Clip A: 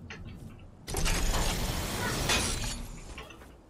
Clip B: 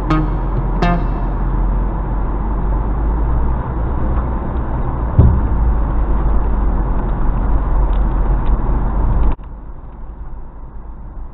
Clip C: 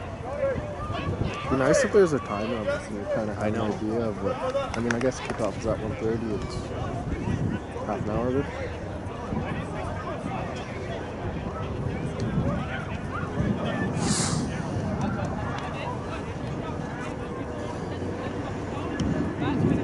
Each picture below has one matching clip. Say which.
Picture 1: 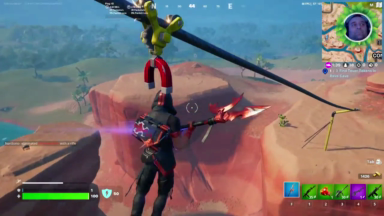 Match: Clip A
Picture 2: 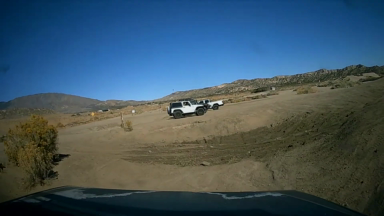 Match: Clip B